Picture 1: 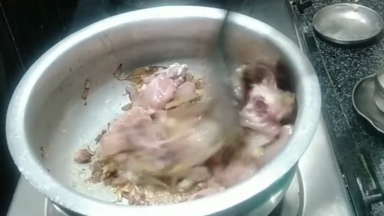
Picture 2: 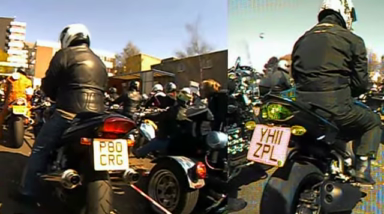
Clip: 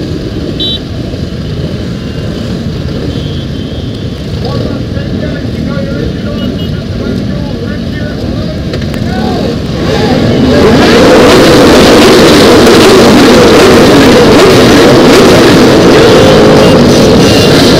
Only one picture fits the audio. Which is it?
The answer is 2